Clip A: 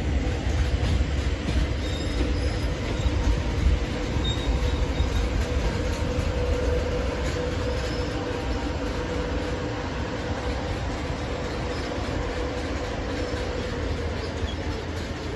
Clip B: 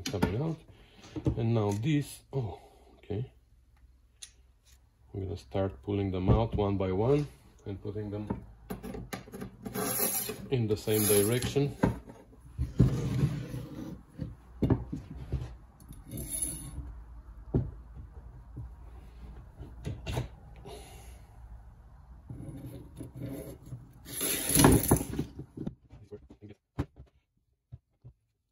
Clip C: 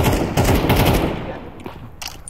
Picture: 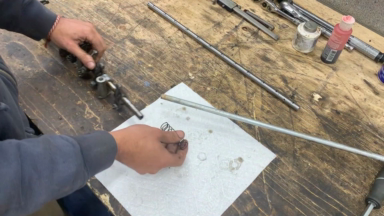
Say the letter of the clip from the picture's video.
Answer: B